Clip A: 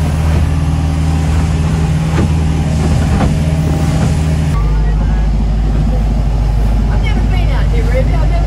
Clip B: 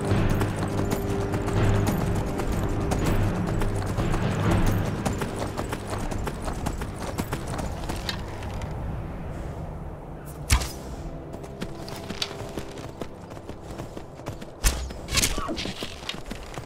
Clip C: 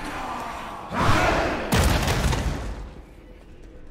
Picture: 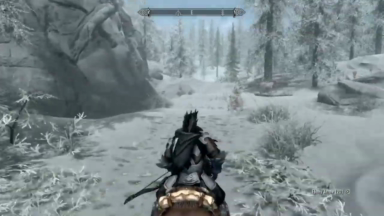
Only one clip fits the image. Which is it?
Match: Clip B